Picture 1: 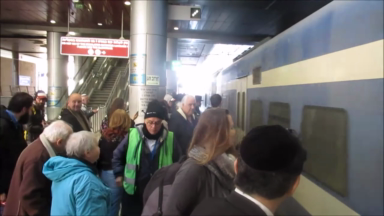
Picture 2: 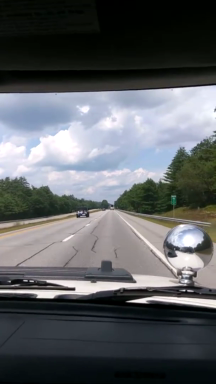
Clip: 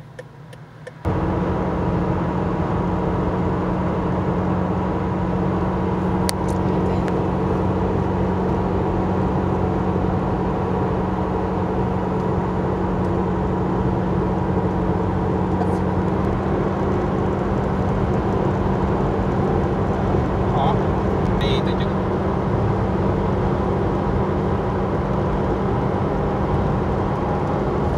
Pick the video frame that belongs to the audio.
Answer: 2